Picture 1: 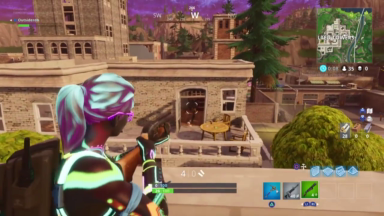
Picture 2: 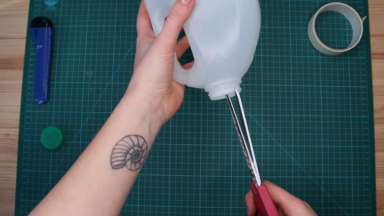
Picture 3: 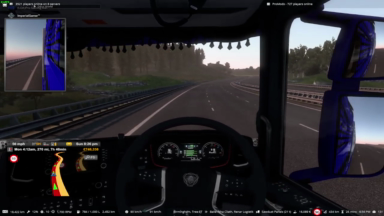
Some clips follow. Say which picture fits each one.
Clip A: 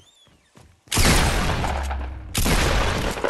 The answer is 1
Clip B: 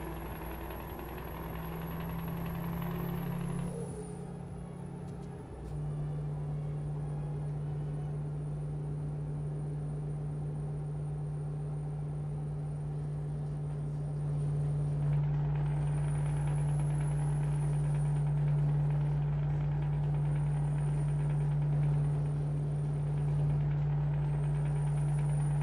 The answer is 3